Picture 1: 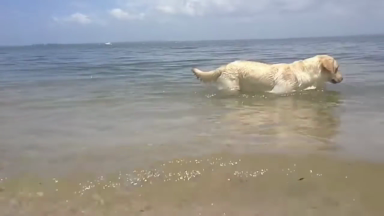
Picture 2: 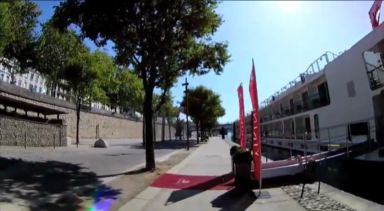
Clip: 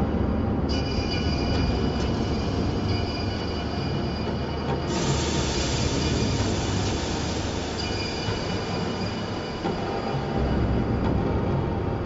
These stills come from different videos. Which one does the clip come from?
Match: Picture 2